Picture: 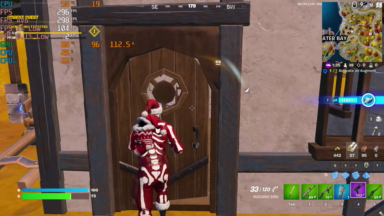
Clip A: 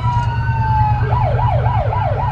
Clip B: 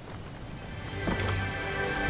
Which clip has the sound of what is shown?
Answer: B